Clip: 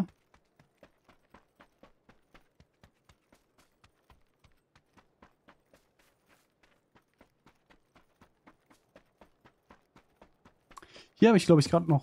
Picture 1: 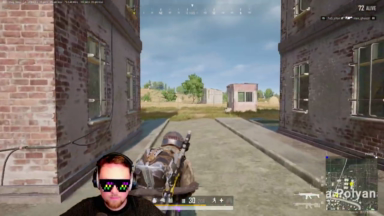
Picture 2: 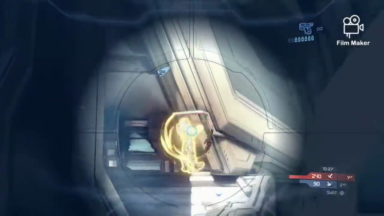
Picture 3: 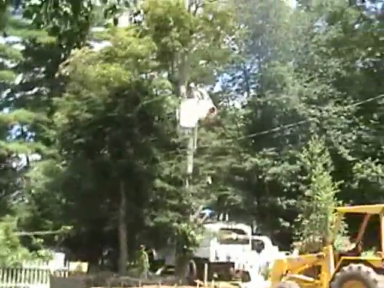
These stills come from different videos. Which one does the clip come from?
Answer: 1